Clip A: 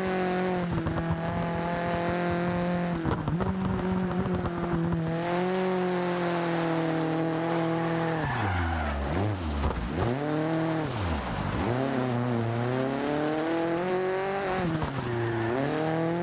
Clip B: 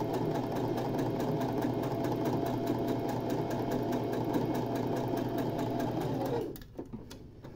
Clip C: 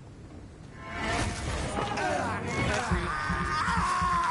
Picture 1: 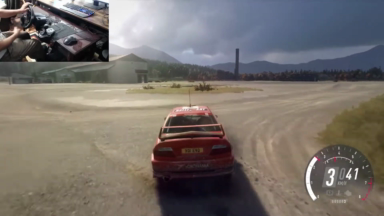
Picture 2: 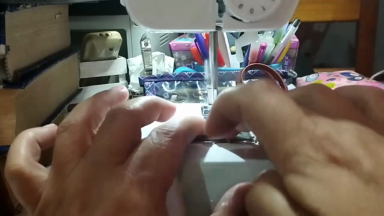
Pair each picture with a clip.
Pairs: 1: A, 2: B